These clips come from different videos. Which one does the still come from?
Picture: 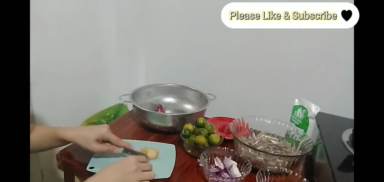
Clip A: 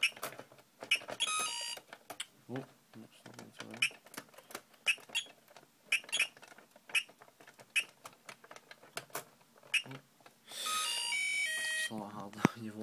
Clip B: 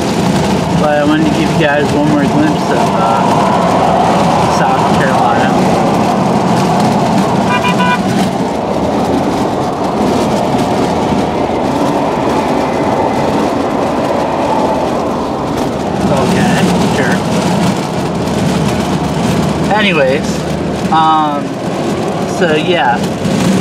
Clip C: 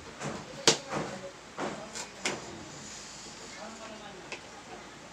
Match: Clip C